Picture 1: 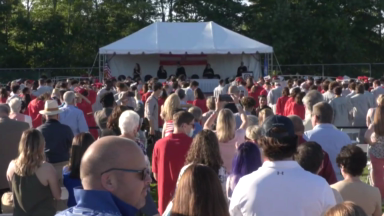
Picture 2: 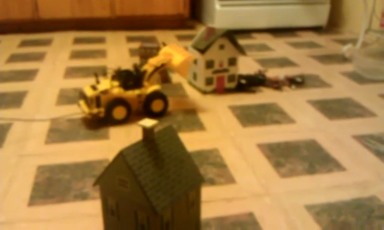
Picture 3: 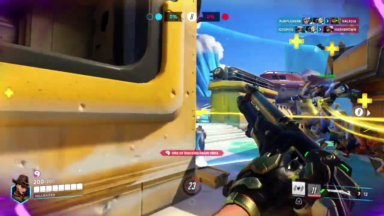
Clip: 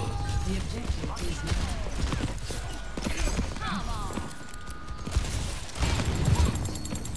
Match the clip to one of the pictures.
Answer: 3